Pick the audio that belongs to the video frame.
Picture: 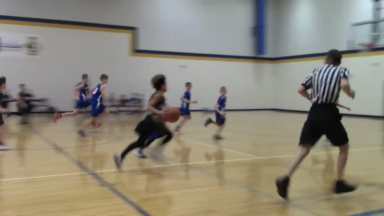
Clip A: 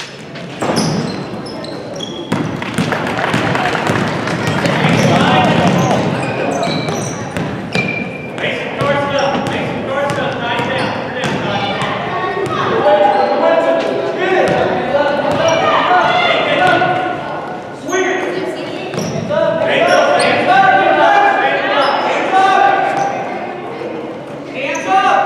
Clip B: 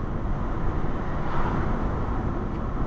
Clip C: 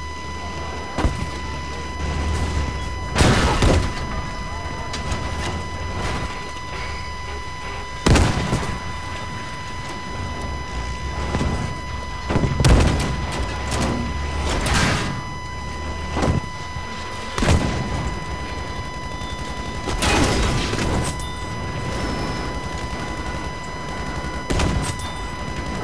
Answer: A